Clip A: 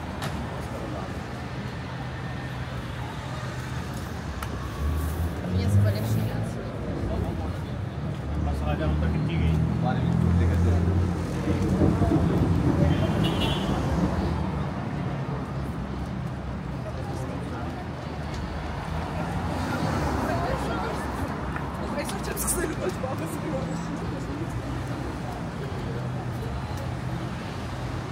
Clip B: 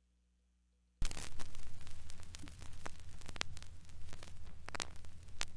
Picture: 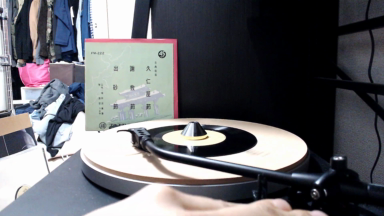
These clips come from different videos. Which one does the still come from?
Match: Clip B